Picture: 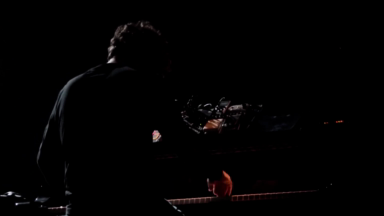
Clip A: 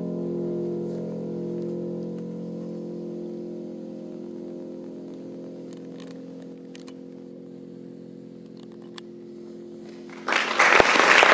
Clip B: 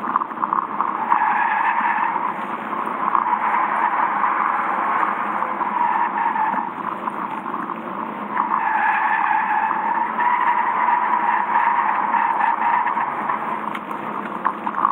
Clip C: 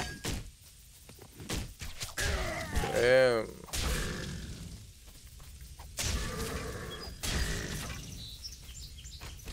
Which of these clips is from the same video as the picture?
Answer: A